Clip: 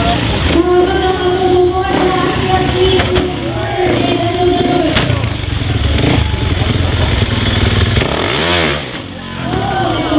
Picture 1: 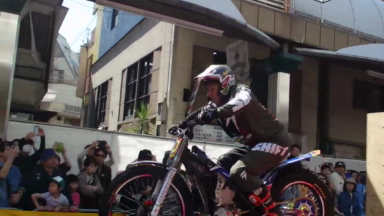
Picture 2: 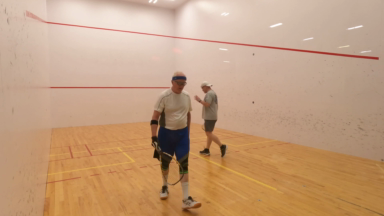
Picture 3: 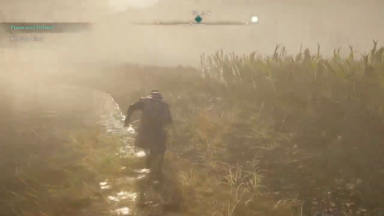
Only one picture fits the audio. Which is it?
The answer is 1